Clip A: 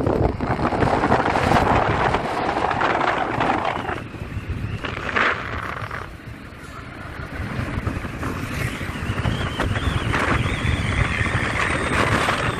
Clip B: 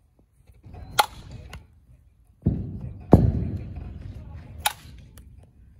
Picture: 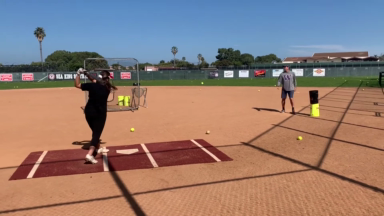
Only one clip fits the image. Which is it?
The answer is B